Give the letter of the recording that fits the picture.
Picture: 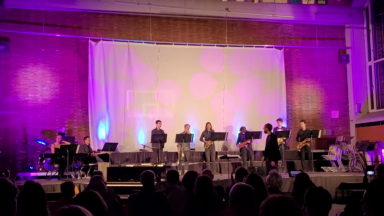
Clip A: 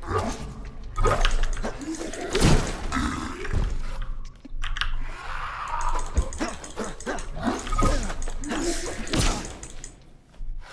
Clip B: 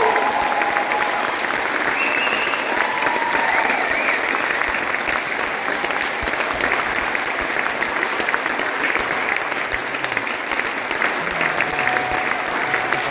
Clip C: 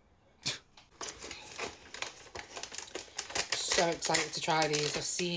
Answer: B